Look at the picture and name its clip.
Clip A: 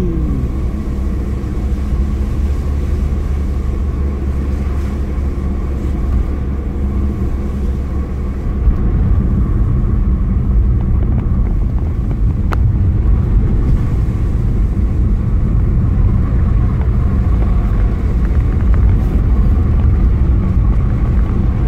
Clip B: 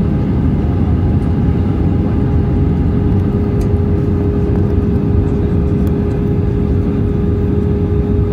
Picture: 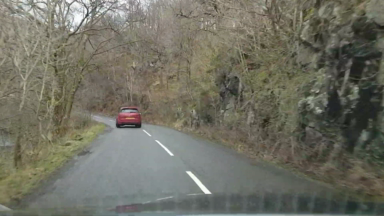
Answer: A